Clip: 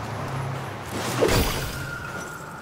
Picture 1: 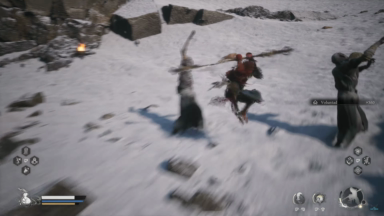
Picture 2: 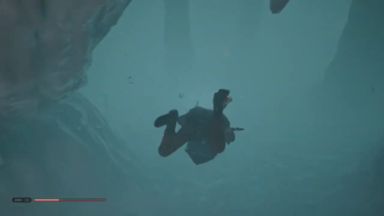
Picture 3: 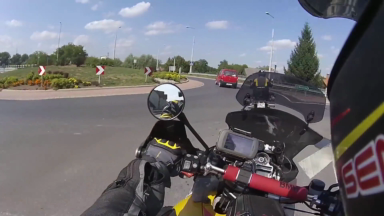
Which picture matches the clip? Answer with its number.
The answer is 1